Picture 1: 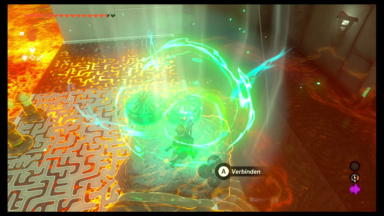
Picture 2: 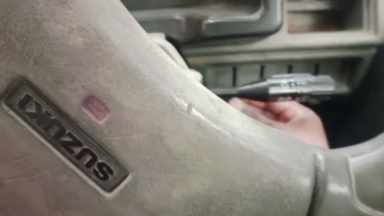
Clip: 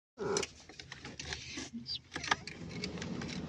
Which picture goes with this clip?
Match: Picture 2